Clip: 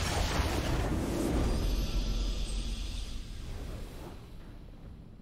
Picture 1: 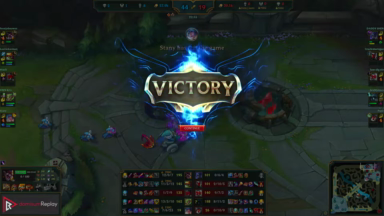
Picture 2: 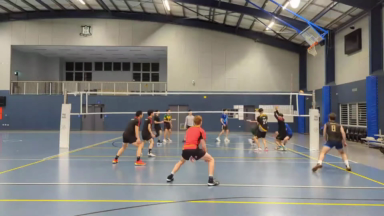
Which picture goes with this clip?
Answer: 1